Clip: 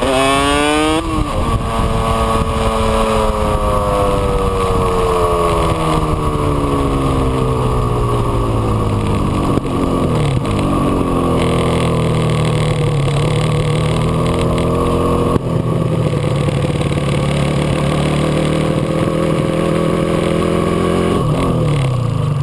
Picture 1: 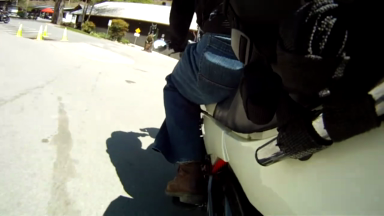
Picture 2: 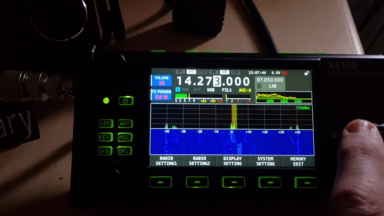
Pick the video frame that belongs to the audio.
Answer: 1